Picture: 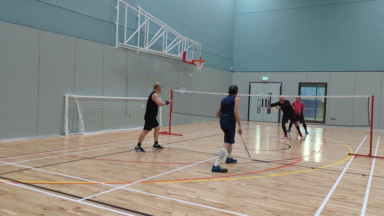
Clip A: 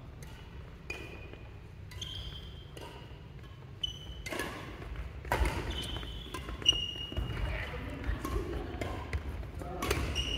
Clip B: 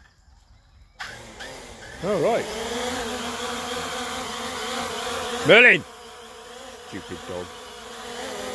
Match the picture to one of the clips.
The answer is A